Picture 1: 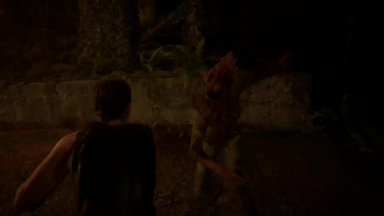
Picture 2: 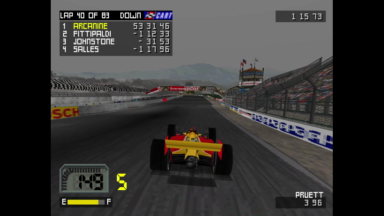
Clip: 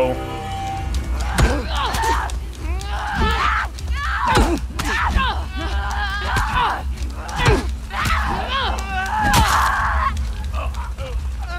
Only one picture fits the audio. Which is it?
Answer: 1